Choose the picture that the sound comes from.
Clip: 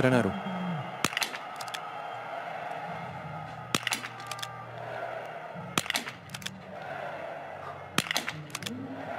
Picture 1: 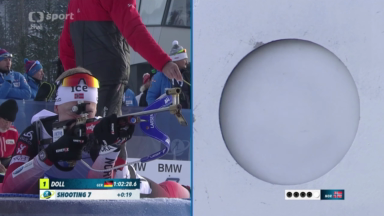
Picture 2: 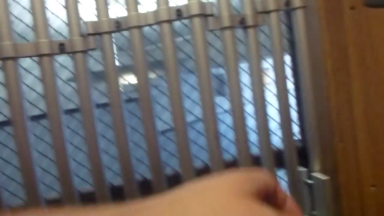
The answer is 1